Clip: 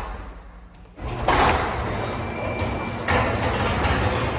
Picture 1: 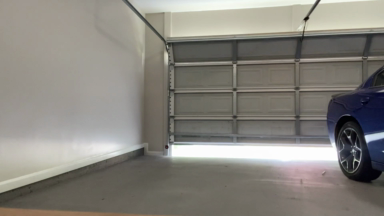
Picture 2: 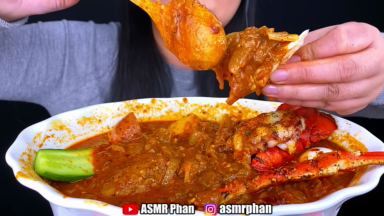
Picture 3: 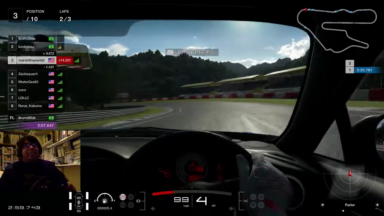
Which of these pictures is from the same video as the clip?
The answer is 1